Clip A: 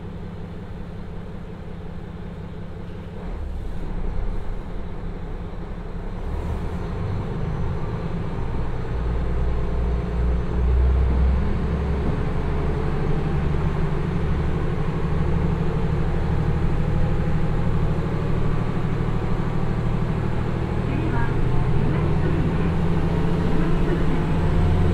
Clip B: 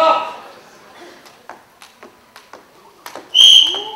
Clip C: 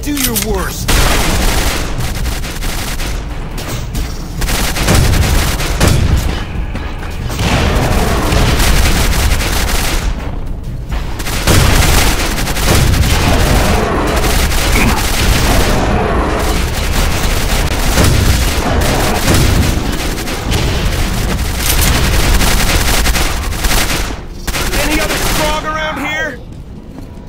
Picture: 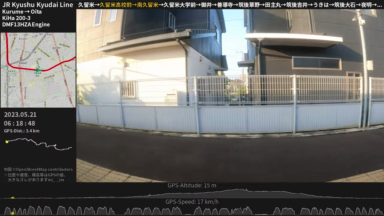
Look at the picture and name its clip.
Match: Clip A